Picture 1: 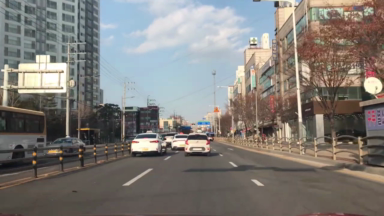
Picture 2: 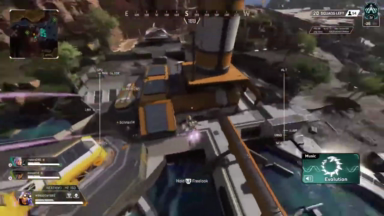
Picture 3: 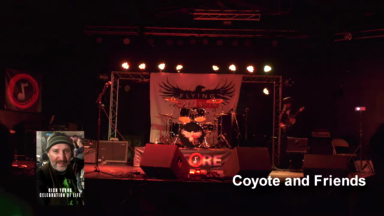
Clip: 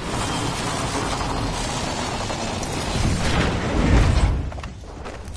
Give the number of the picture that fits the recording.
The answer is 2